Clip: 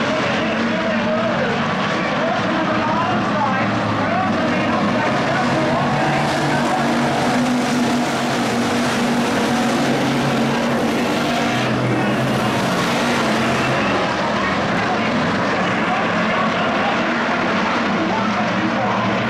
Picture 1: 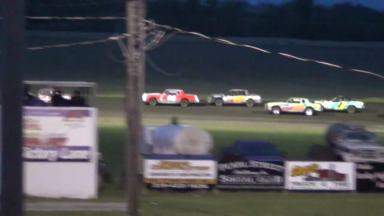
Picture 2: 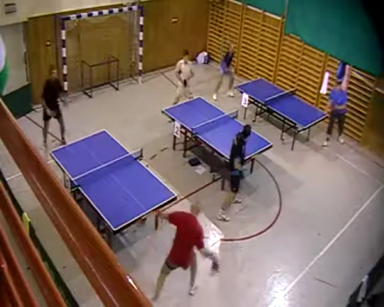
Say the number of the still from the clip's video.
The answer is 1